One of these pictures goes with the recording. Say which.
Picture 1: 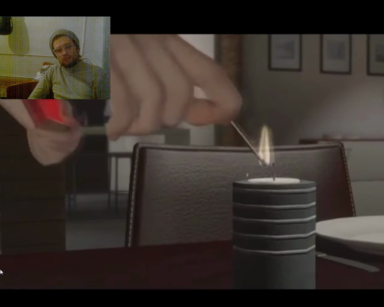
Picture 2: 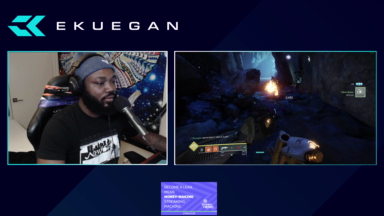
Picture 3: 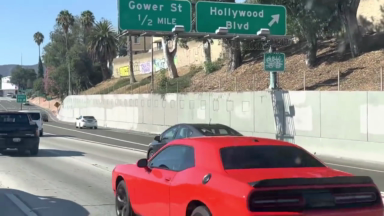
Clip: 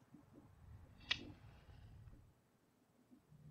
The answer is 1